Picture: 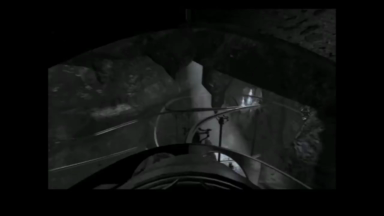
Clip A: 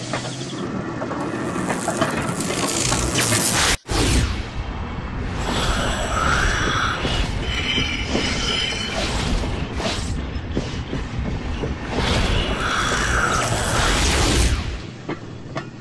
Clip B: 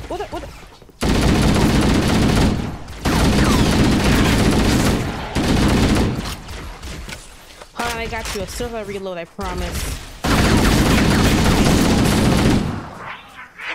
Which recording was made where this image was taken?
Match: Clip A